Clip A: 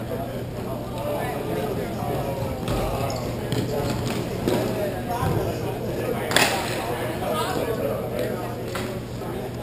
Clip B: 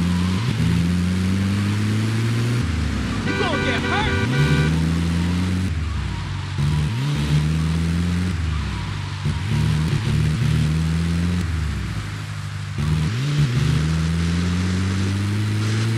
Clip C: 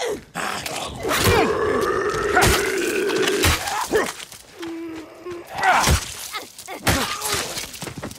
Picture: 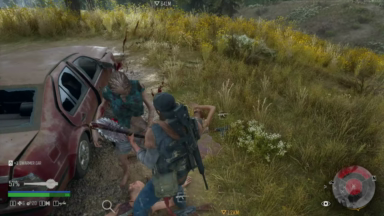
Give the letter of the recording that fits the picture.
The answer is C